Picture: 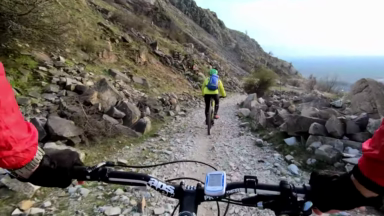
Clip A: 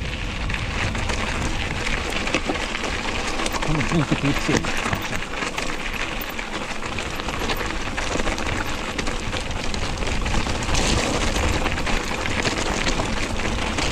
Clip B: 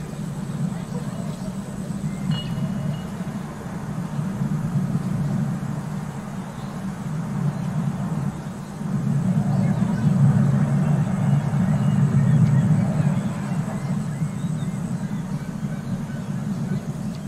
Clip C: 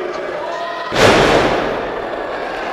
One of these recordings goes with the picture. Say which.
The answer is A